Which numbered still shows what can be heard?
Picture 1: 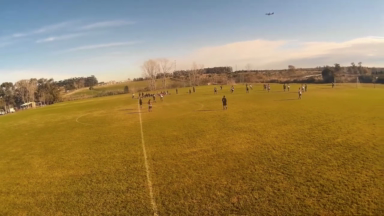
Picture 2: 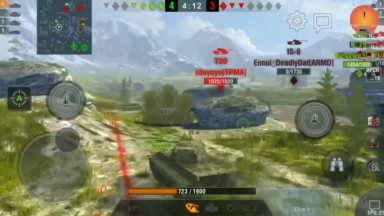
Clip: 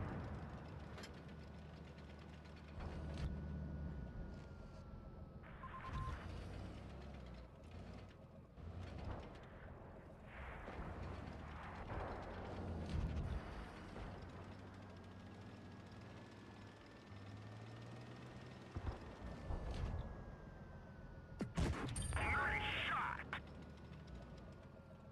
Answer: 2